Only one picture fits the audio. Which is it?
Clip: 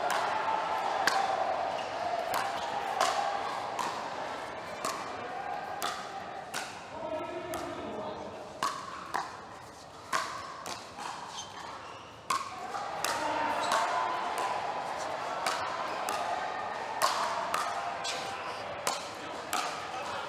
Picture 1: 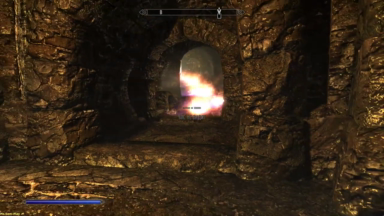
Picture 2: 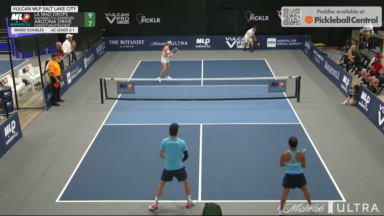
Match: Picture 2